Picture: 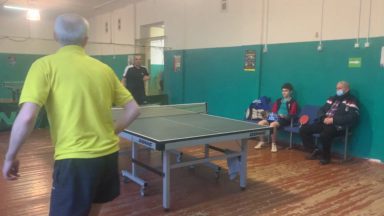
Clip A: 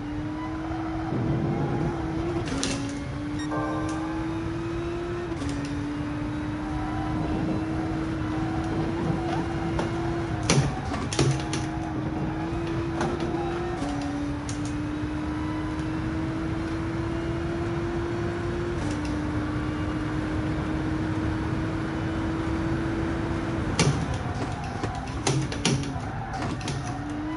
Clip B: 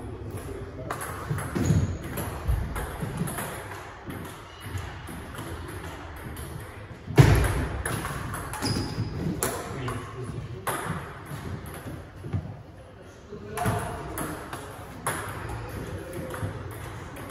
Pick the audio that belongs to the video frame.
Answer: B